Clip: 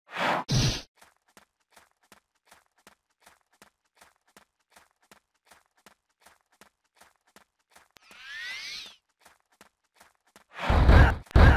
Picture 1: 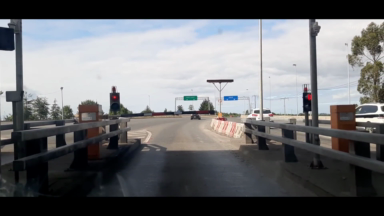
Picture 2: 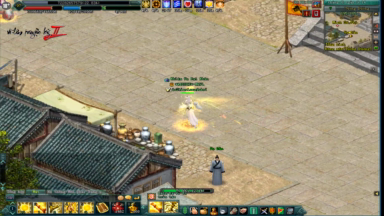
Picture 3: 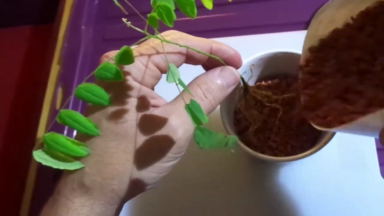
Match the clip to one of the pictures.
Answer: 2